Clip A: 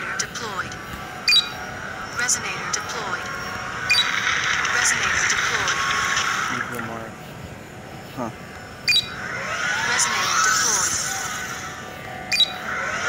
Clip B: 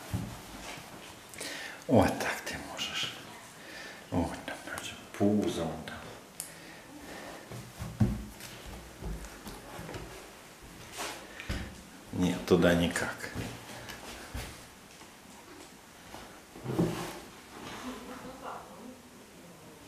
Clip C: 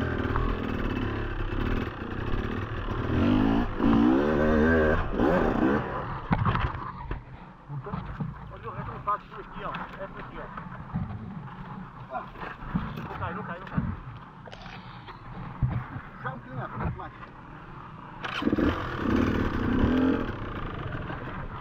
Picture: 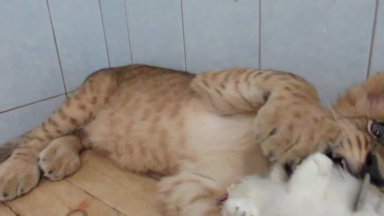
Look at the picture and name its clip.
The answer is B